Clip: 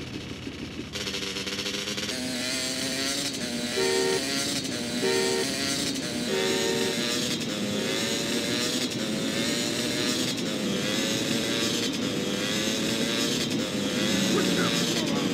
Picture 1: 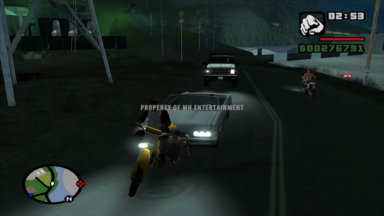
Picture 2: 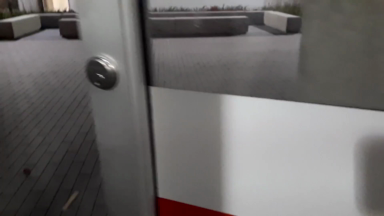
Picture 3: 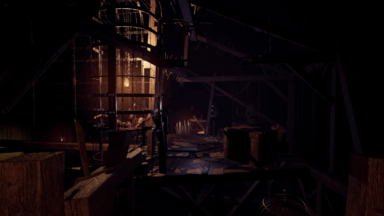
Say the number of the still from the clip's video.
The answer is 1